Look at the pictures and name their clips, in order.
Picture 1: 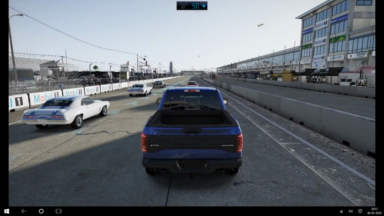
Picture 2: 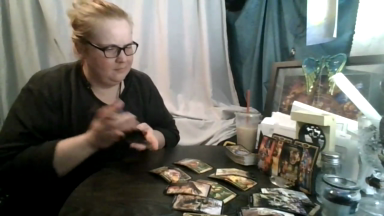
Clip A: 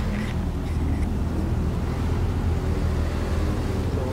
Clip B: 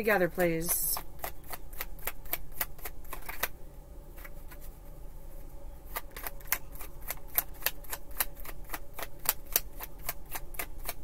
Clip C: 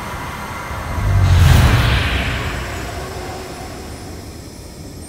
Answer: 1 A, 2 B